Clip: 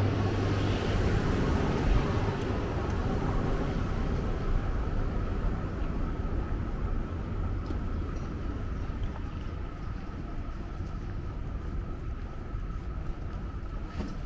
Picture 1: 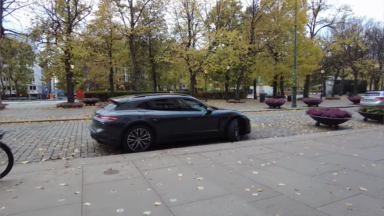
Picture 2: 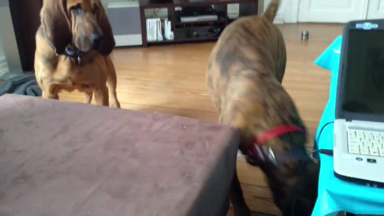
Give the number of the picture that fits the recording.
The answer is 1